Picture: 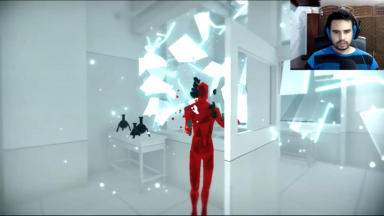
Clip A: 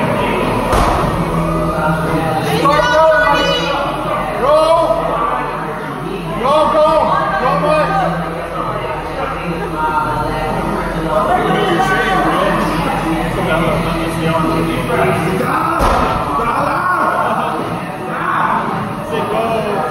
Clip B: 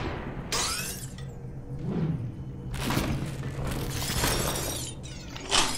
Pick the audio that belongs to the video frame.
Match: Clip B